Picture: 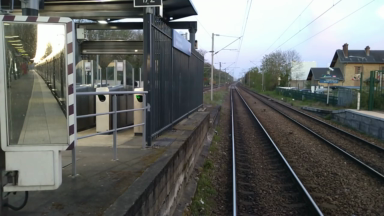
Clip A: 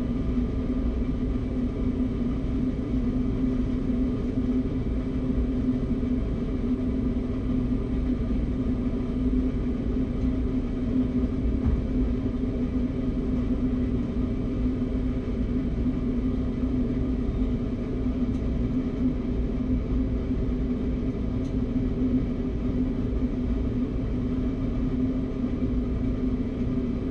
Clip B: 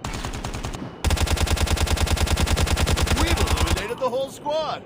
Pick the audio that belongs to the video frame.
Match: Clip A